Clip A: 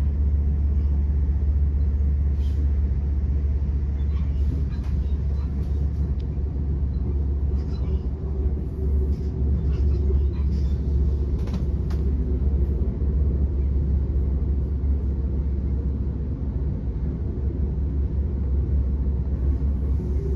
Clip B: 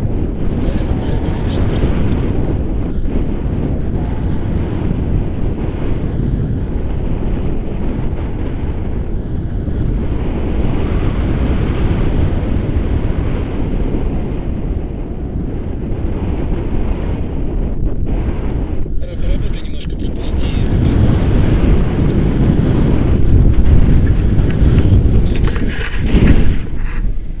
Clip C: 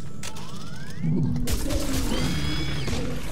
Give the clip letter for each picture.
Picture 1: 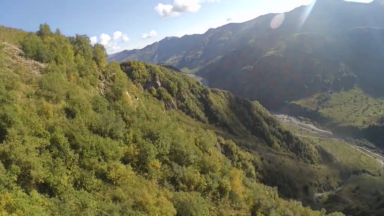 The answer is B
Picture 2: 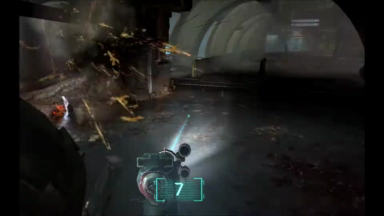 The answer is C